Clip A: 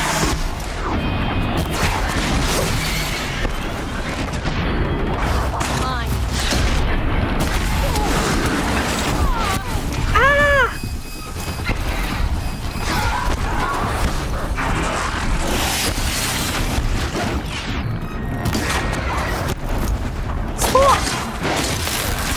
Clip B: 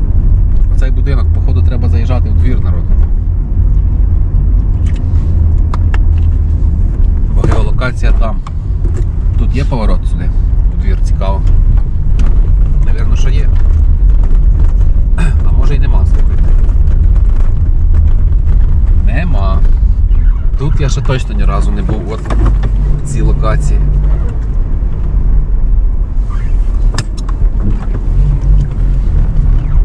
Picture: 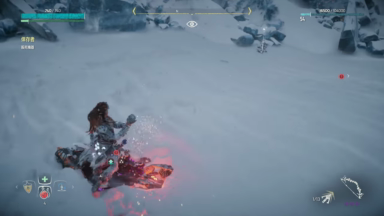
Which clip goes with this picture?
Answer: A